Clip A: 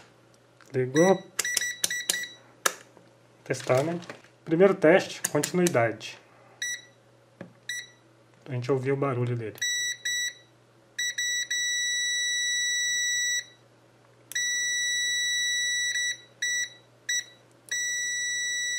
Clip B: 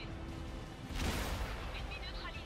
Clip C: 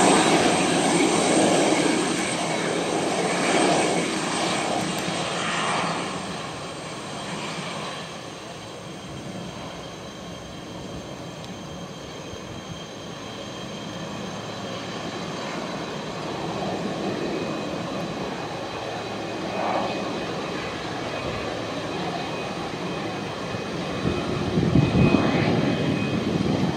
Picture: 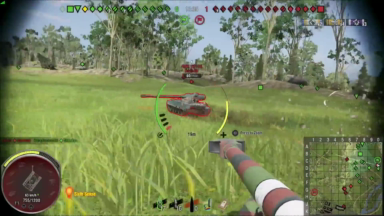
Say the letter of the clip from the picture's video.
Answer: B